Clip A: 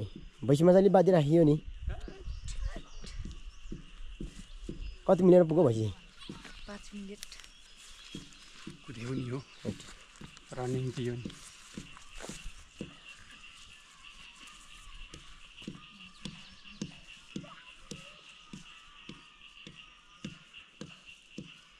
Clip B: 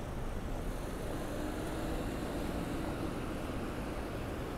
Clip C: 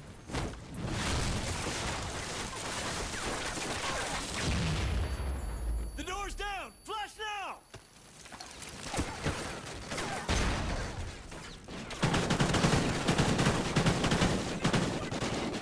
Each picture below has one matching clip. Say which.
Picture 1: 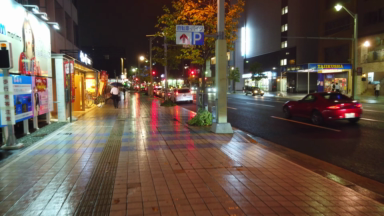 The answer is B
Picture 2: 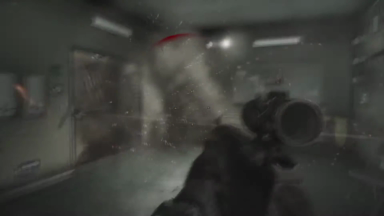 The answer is C